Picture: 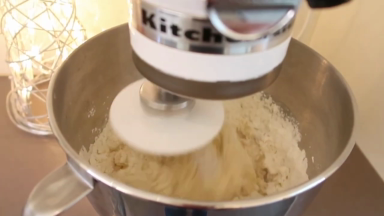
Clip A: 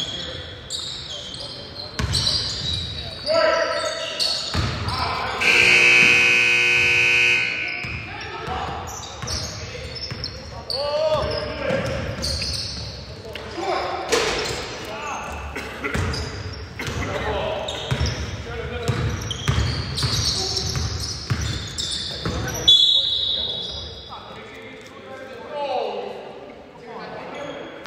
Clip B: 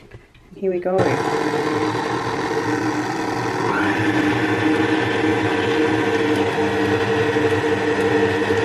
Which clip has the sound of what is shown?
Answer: B